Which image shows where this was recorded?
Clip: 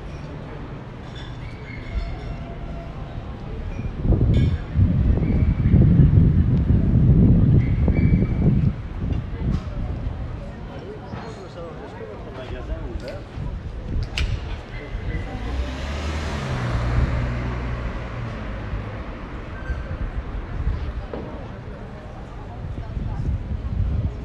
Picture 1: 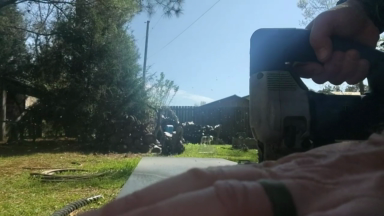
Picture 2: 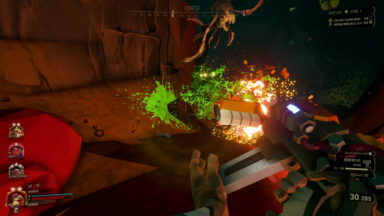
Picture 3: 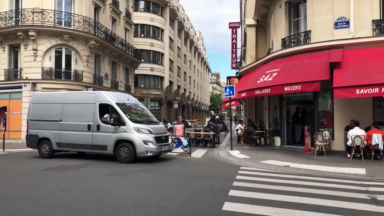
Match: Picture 3